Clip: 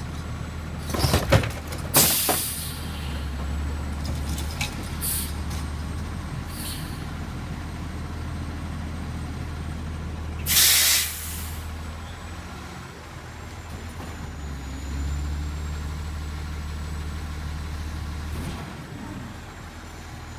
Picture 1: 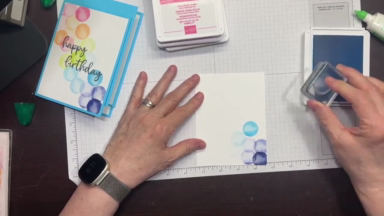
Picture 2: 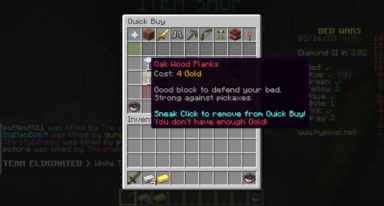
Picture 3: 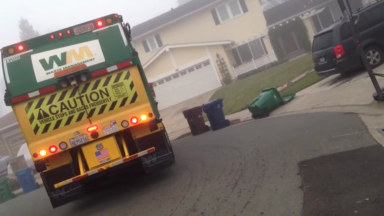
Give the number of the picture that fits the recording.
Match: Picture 3